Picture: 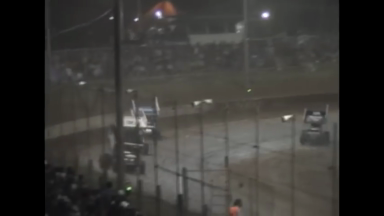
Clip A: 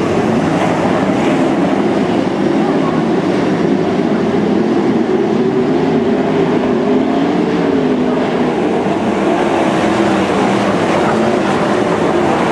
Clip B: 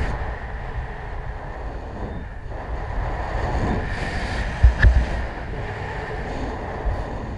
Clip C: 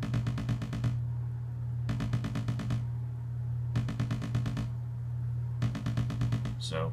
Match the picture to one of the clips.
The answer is A